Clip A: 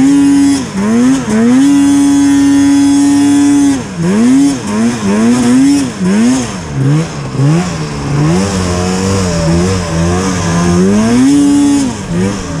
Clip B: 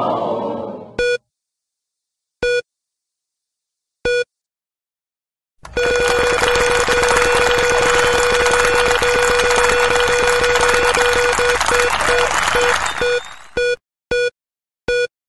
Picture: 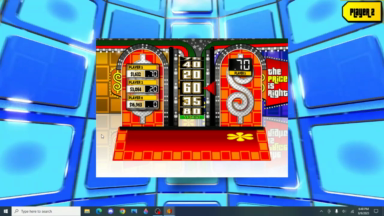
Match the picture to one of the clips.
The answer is B